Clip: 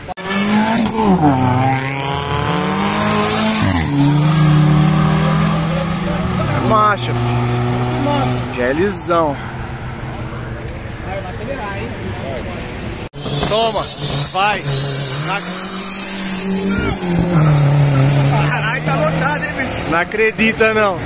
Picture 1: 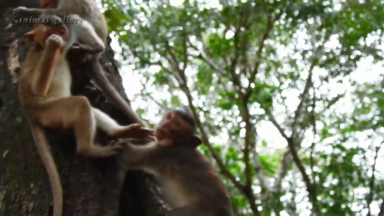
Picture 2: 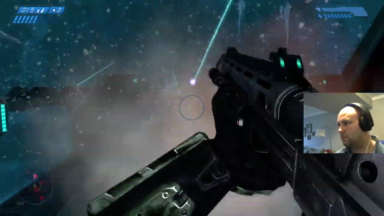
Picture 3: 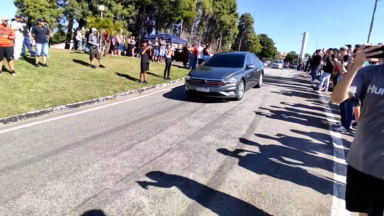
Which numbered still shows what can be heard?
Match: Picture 3